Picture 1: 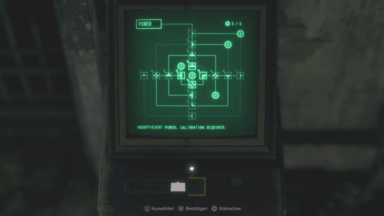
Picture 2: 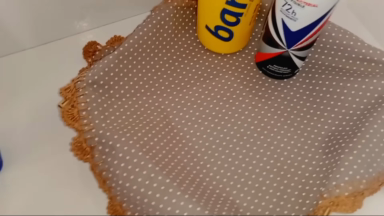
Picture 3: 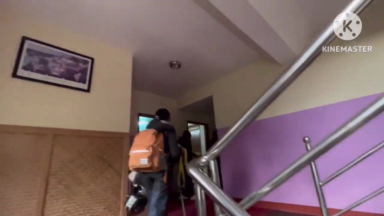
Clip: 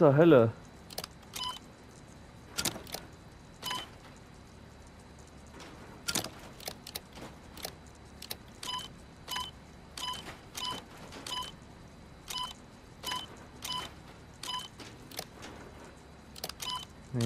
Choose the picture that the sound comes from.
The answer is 1